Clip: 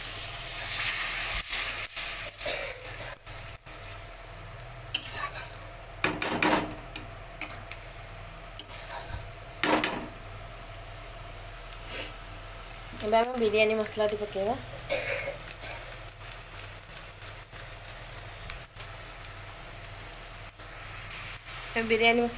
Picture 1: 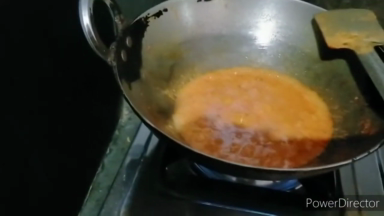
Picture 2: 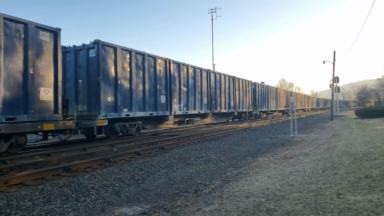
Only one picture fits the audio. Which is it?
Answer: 1